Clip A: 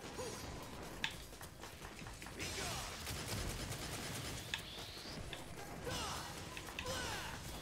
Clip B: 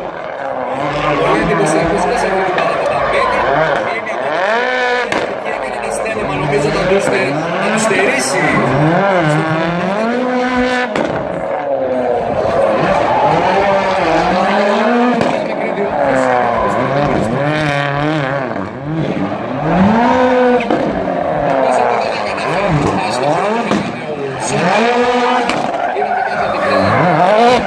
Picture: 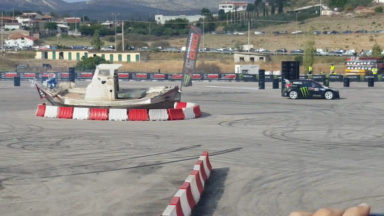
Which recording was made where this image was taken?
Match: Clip B